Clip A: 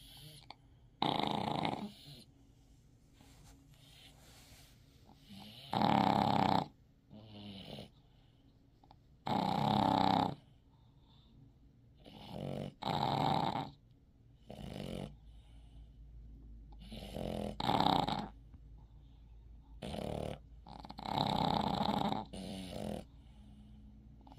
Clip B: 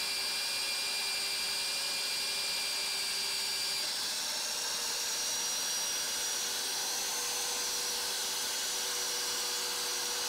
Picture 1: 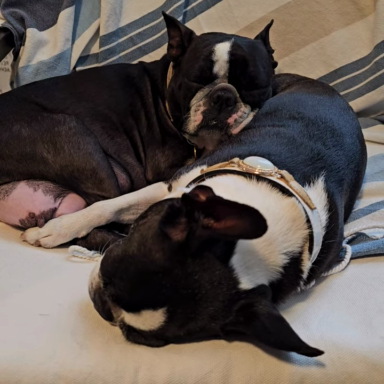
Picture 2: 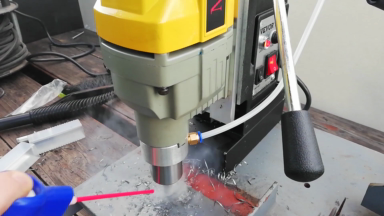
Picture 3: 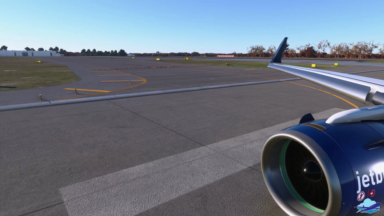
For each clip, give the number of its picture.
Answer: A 1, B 2